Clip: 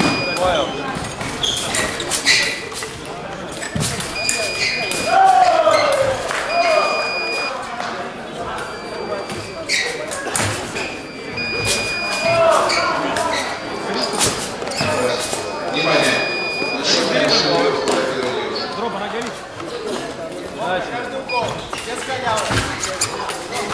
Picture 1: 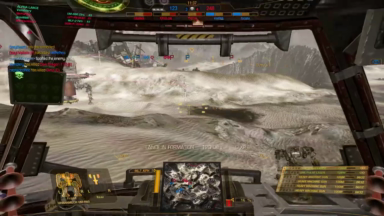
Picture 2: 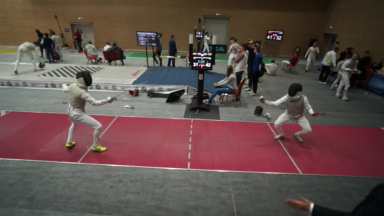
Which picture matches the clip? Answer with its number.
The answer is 2